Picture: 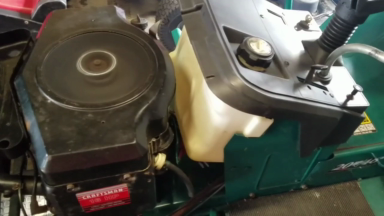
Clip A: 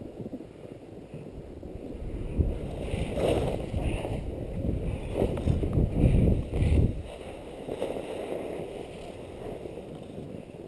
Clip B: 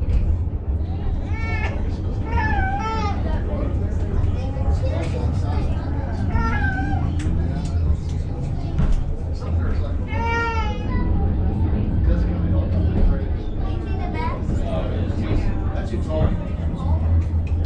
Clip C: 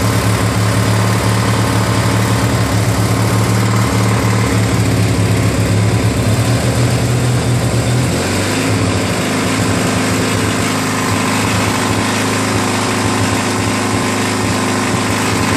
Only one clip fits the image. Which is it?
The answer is C